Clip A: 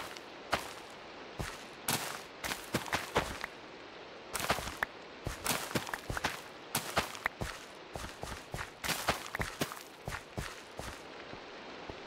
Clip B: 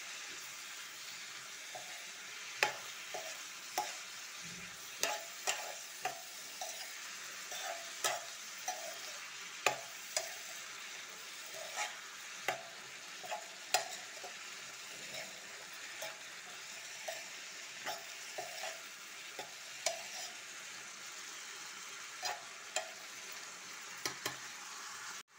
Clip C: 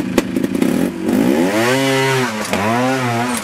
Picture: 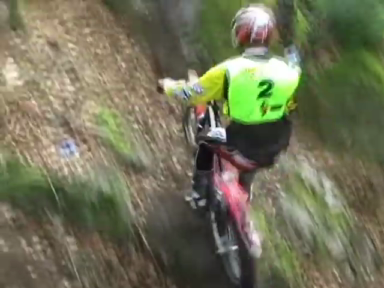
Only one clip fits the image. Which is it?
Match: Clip C